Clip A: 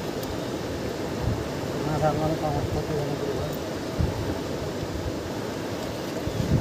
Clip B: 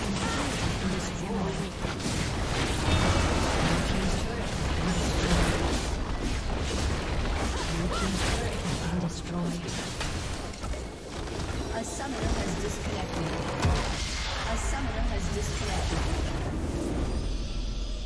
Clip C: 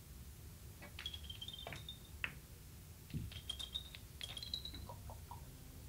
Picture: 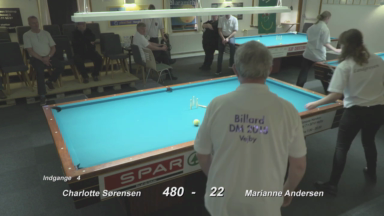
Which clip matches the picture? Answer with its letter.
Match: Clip C